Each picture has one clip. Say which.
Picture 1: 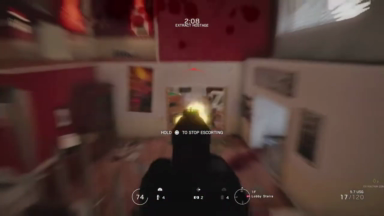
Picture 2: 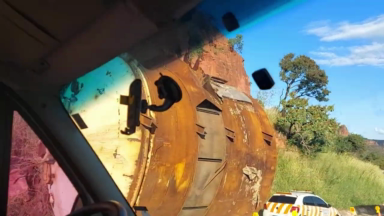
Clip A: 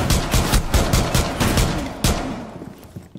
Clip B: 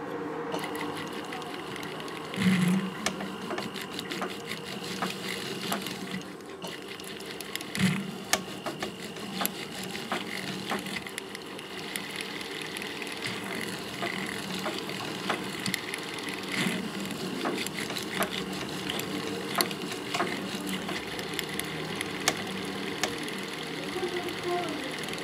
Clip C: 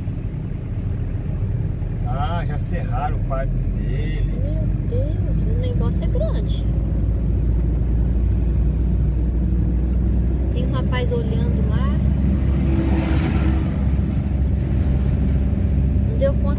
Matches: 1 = A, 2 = C